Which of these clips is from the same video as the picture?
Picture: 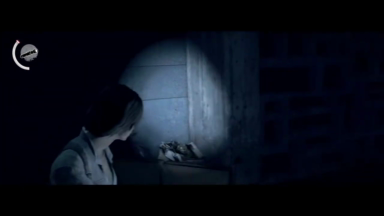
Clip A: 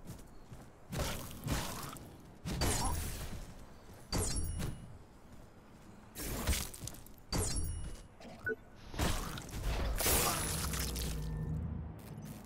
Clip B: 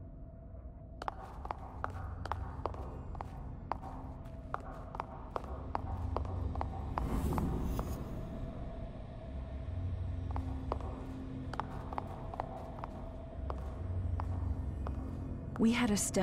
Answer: B